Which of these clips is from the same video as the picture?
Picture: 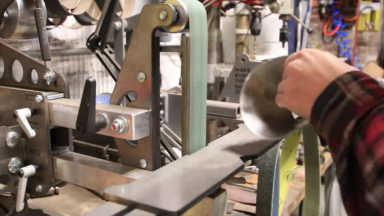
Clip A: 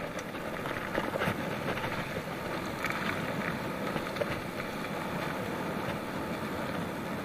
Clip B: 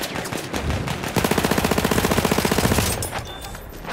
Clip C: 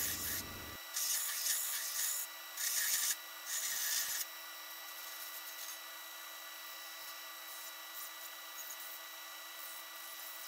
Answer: C